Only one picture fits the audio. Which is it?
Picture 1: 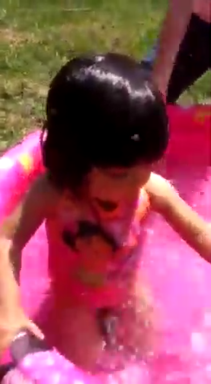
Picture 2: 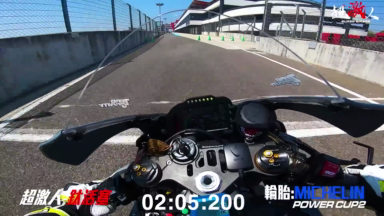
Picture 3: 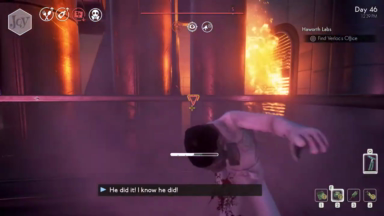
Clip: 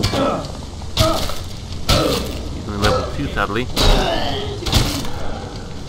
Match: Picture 3